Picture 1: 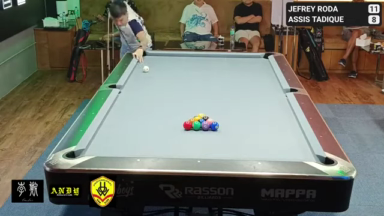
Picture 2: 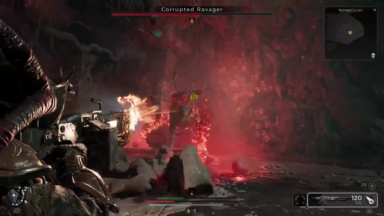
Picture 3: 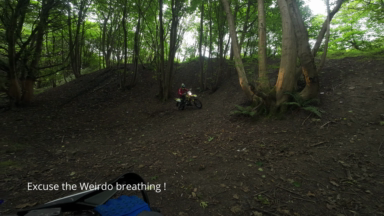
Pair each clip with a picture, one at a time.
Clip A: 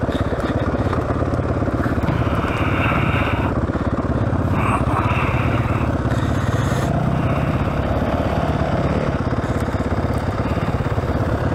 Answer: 3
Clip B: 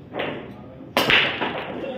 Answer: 1